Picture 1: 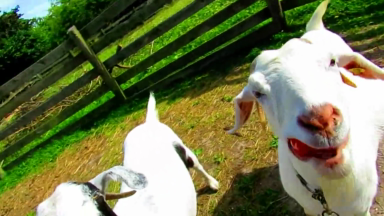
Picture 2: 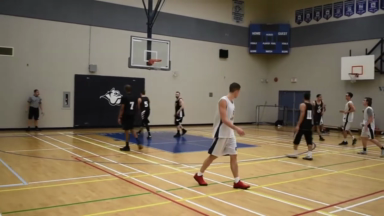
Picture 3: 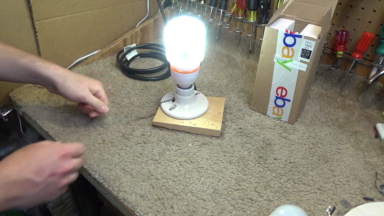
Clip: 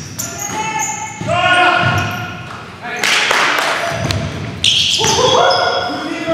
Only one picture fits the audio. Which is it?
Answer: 2